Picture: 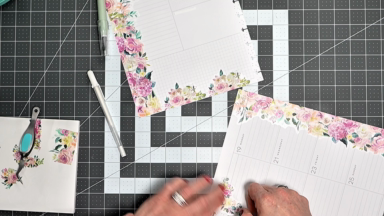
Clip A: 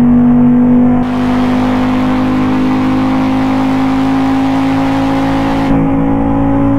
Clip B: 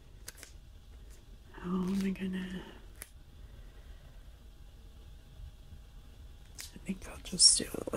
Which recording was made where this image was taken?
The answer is B